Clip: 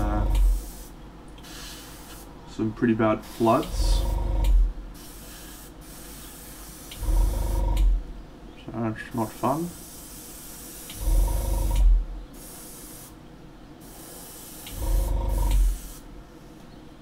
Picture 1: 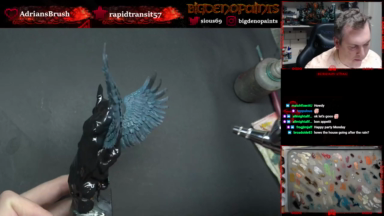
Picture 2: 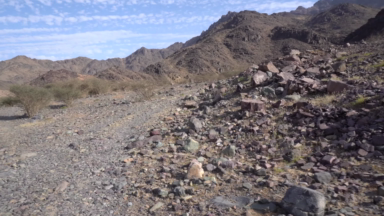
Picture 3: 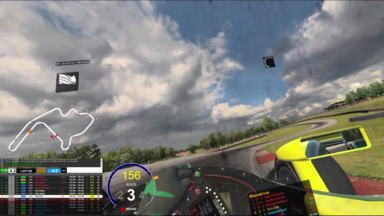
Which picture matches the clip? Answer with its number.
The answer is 1